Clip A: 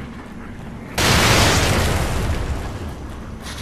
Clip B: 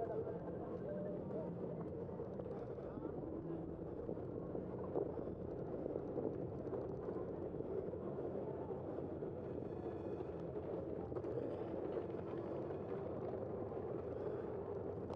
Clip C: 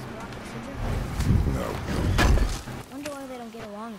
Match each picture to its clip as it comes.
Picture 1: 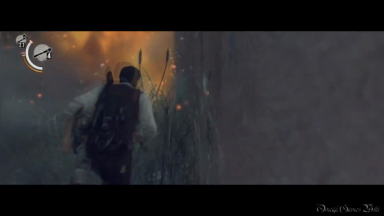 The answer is A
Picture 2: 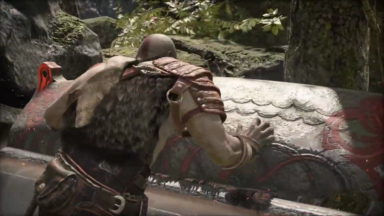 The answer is C